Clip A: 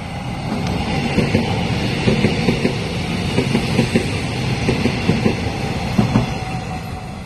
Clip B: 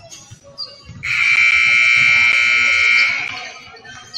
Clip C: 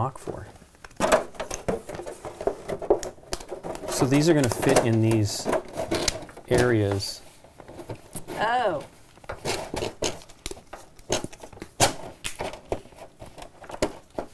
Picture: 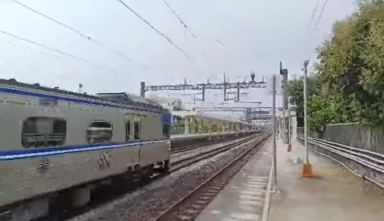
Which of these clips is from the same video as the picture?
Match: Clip A